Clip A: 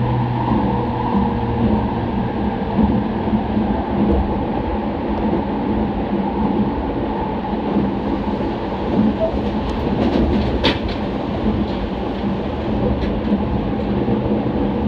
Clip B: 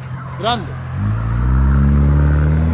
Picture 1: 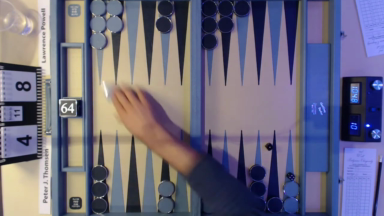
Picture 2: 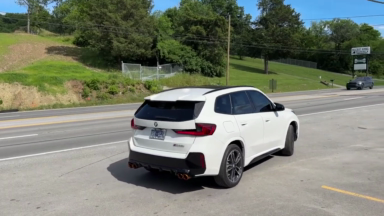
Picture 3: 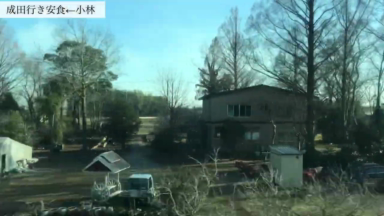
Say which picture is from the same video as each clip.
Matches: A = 3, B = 2